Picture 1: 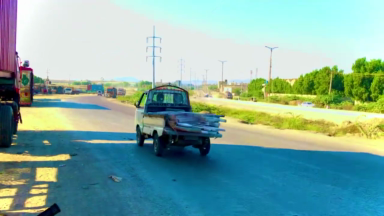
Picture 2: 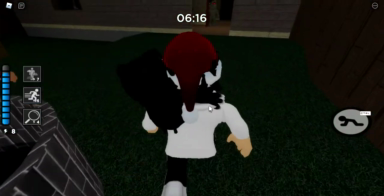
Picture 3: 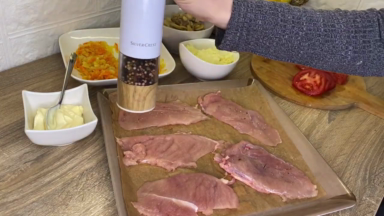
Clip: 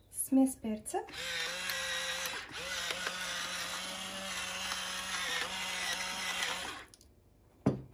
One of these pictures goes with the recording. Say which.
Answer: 3